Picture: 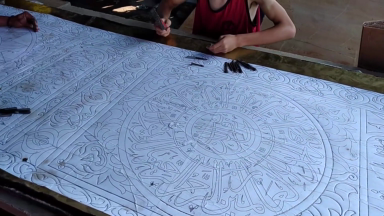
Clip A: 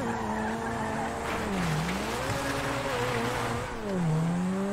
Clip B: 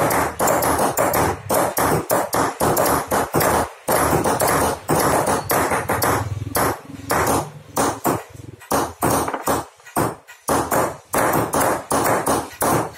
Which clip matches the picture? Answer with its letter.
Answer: B